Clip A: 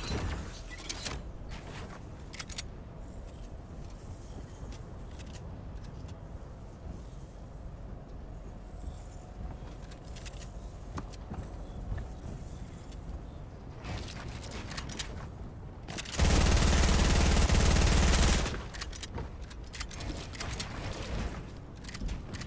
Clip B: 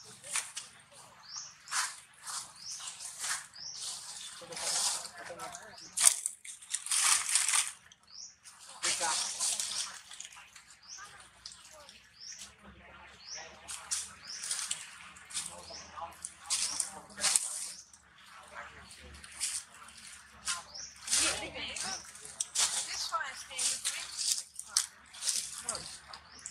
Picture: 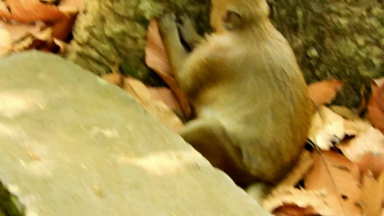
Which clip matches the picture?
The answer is B